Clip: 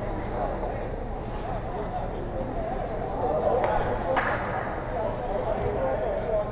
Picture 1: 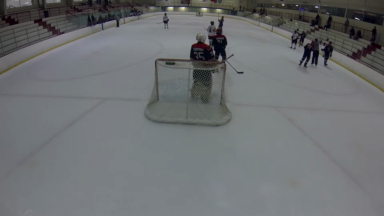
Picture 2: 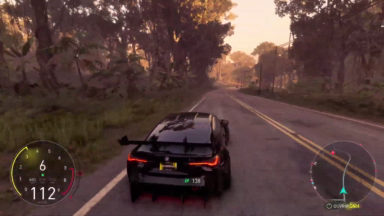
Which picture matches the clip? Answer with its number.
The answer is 1